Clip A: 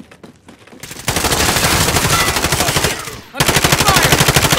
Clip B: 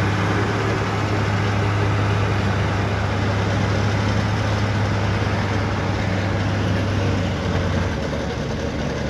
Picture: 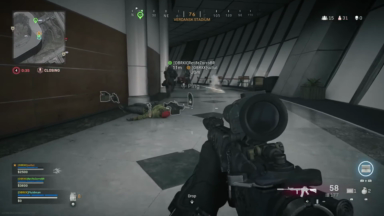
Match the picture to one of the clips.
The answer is A